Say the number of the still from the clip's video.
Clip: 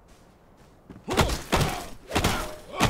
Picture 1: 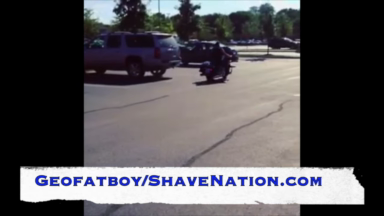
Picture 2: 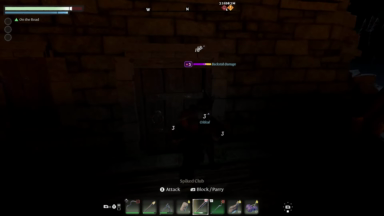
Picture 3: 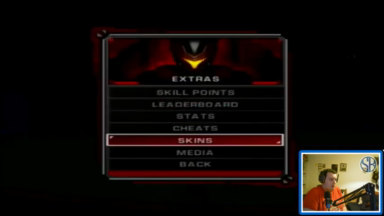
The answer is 2